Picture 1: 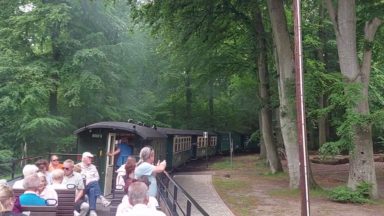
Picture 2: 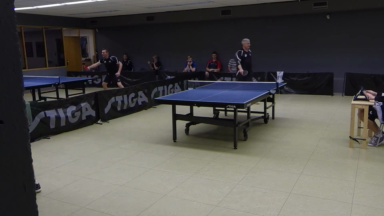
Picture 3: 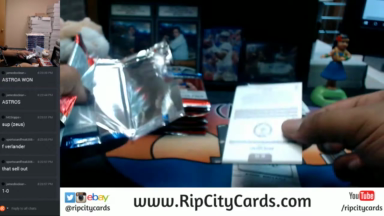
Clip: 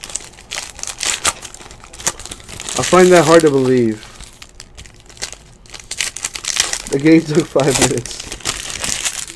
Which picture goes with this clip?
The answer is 3